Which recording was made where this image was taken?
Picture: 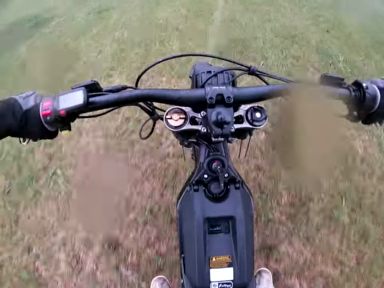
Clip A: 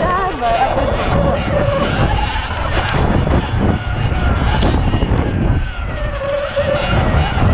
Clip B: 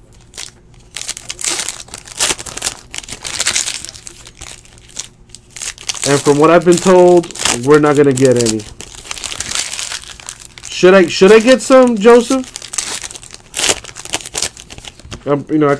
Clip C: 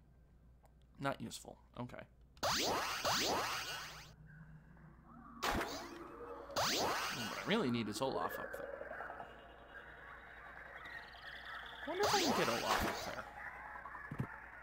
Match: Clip A